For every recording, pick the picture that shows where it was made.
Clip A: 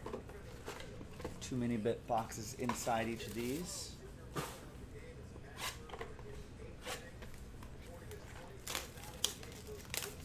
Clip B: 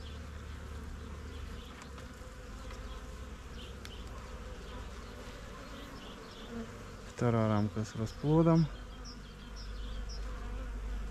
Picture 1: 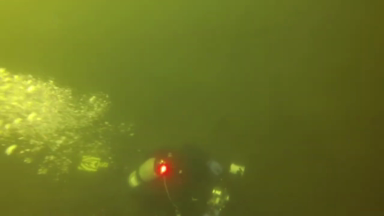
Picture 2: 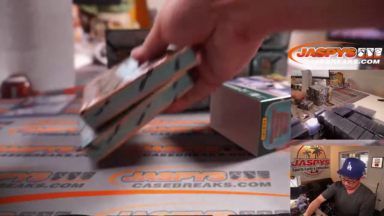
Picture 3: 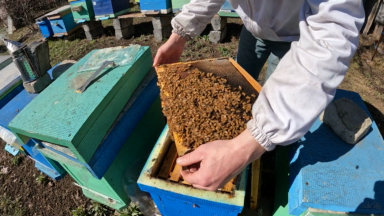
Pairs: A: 2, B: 3